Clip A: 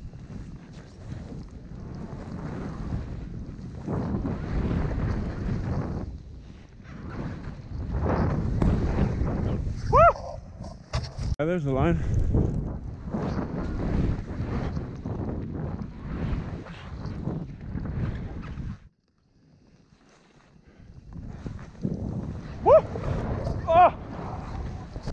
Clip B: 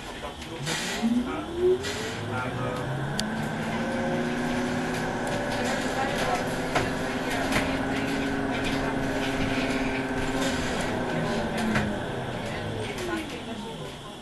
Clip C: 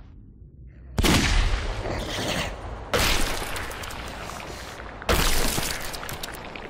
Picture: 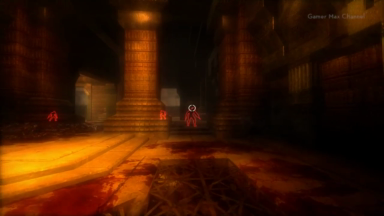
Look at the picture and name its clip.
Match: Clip C